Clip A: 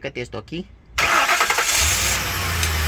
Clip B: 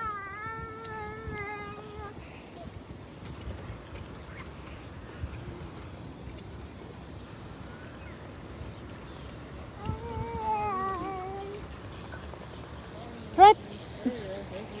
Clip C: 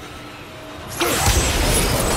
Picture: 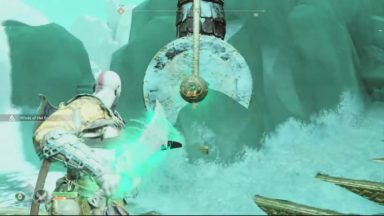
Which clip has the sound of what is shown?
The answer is C